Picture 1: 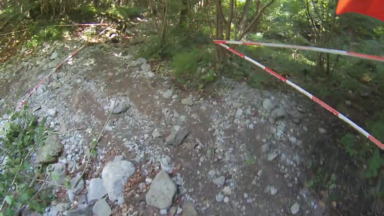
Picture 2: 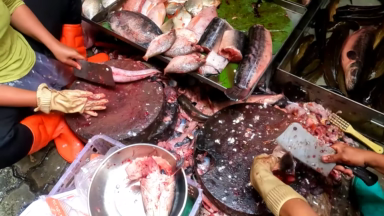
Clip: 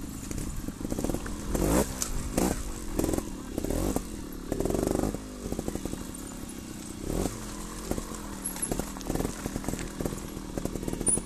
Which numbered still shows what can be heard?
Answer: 1